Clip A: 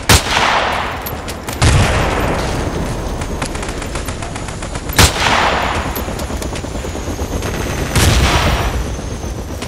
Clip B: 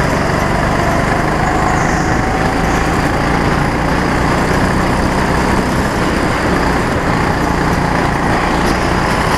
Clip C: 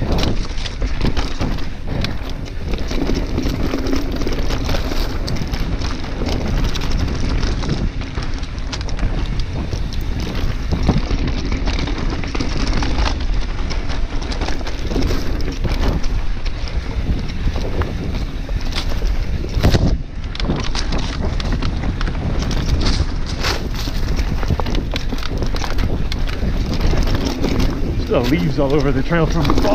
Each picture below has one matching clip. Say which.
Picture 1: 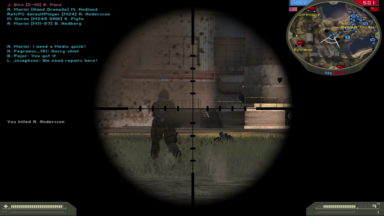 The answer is A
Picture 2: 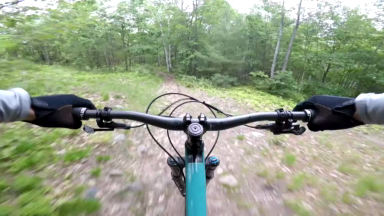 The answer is C